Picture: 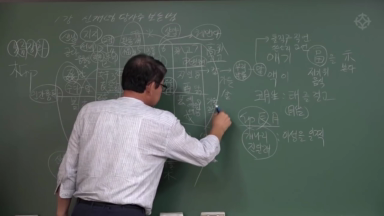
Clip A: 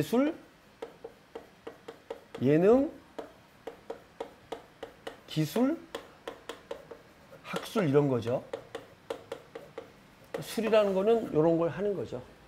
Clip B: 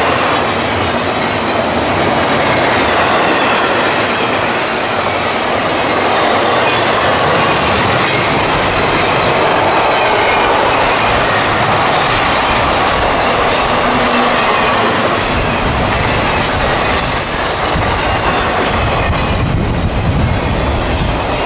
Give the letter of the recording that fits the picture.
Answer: A